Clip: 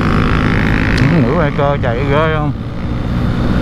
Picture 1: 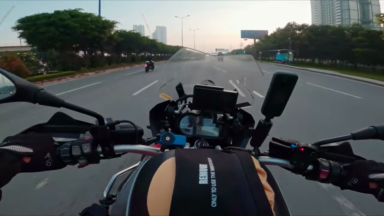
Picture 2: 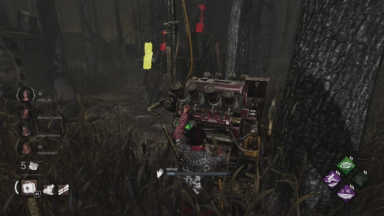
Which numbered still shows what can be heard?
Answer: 1